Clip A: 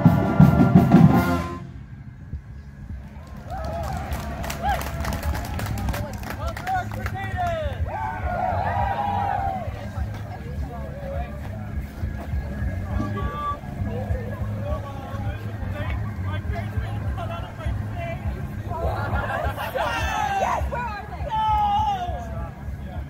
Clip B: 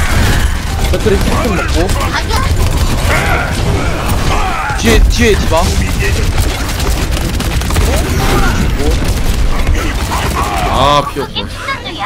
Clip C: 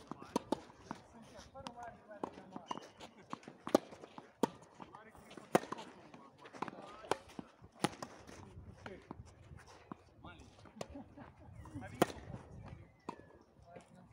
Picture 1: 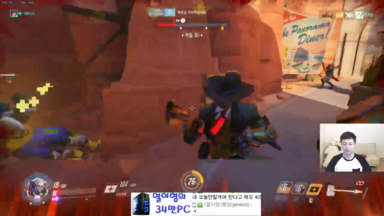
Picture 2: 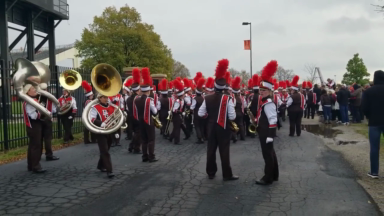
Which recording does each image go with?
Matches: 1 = B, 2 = A